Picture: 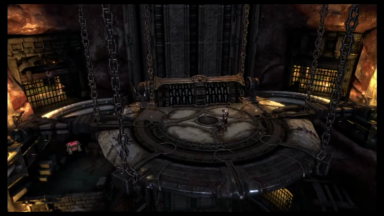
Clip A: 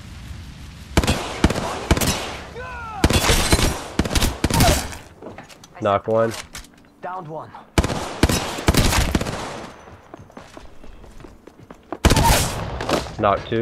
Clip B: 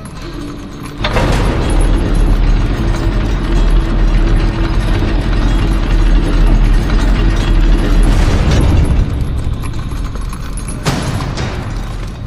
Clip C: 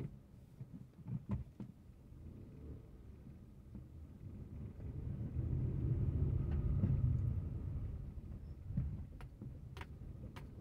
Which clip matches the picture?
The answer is B